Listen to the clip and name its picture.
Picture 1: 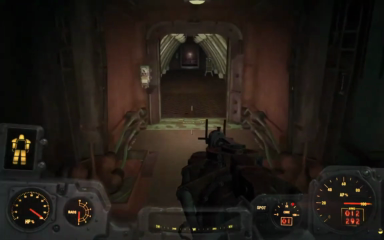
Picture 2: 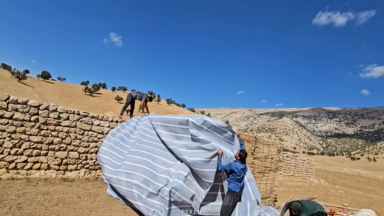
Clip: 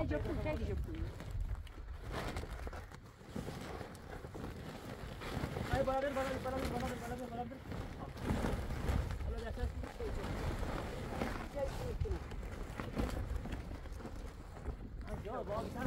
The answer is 2